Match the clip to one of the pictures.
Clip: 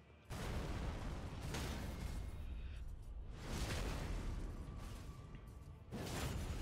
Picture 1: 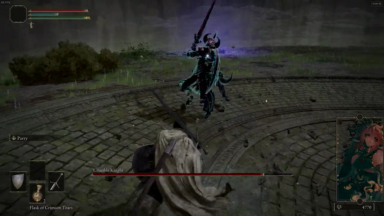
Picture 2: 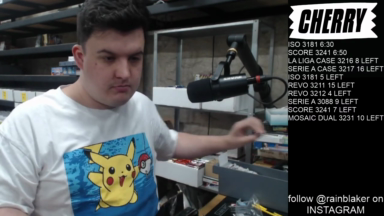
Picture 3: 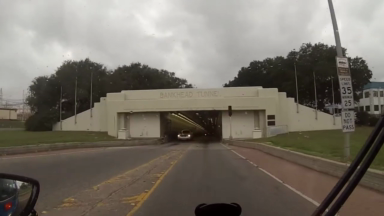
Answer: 1